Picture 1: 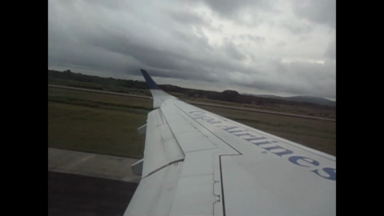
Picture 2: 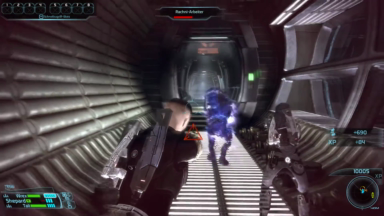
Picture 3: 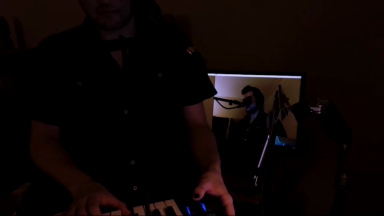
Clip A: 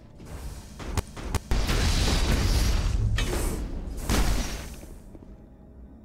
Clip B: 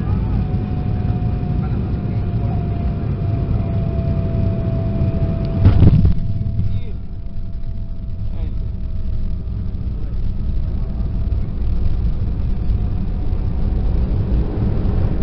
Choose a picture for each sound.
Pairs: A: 2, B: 1